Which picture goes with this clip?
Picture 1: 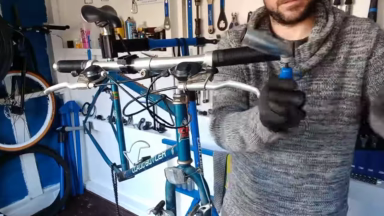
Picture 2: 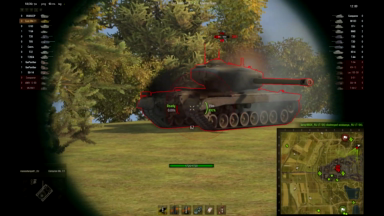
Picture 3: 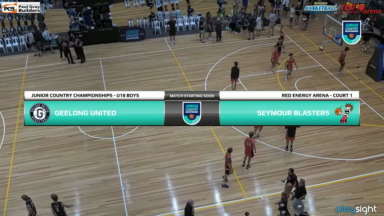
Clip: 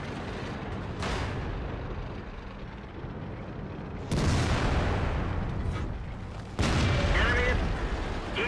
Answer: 2